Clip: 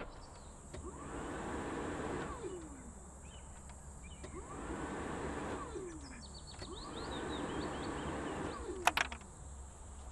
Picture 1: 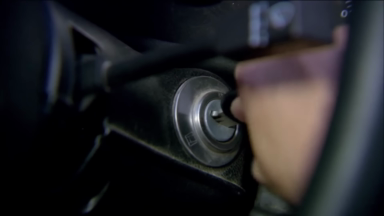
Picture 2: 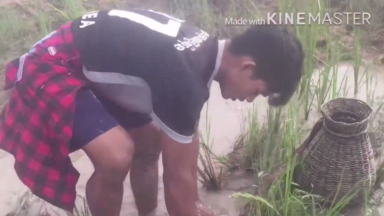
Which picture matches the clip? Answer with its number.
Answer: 1